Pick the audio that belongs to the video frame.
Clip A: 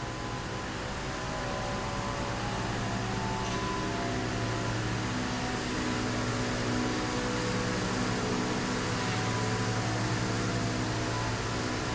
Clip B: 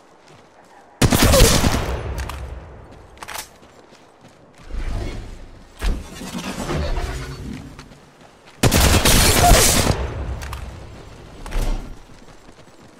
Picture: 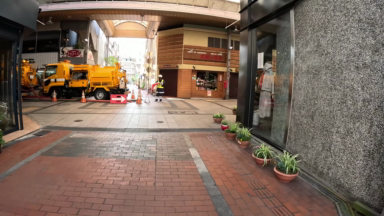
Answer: A